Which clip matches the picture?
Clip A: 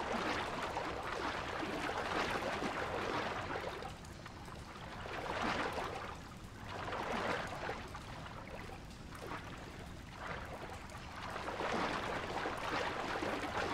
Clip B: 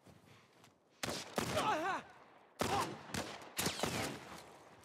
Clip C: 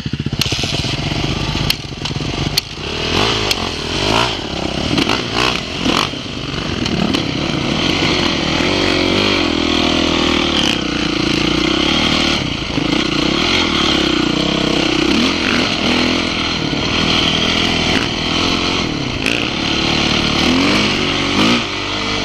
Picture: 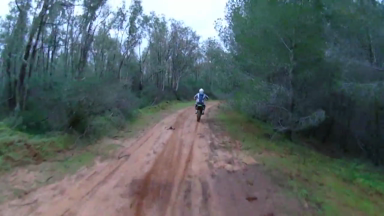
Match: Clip C